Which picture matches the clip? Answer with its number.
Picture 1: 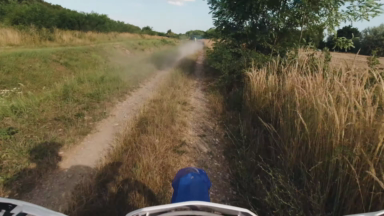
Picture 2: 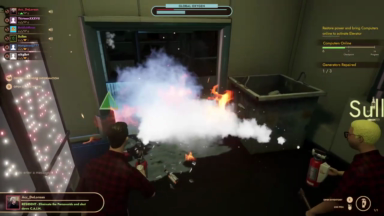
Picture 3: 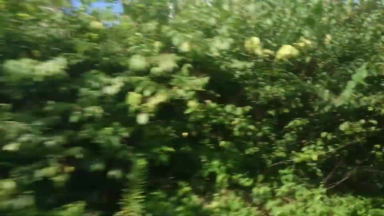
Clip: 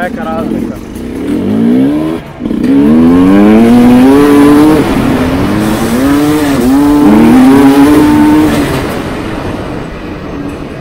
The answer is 1